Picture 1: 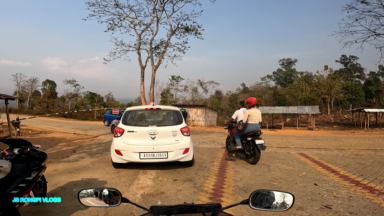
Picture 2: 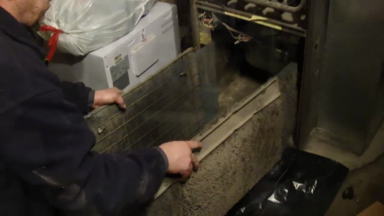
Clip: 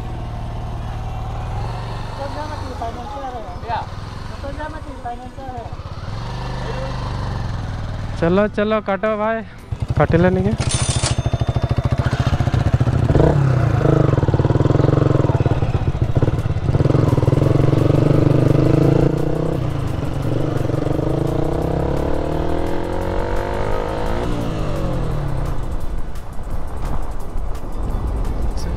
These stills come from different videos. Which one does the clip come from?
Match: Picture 1